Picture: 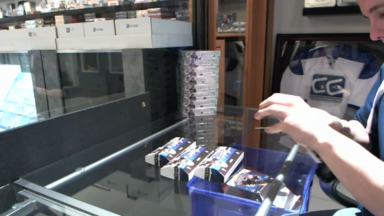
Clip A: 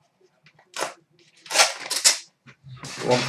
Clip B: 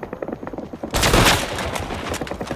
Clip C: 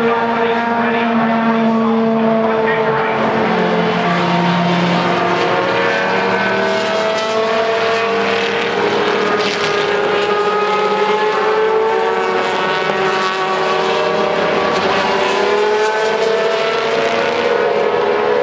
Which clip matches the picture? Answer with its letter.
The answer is A